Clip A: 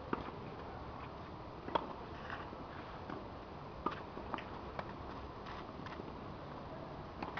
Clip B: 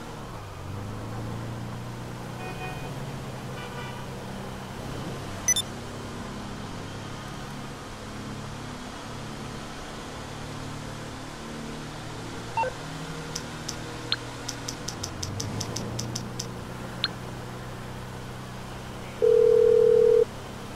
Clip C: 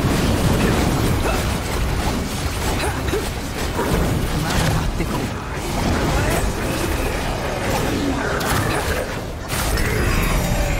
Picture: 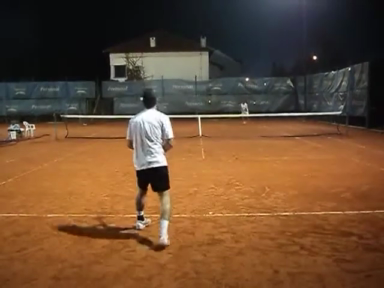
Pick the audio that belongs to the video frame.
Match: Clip A